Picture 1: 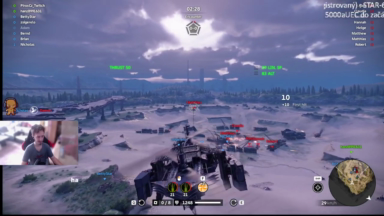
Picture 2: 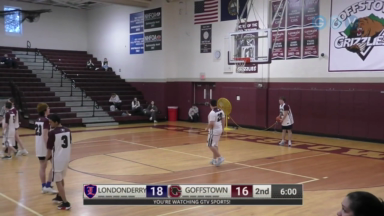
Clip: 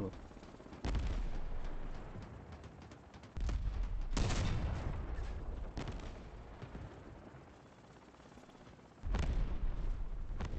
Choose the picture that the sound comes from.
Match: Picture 1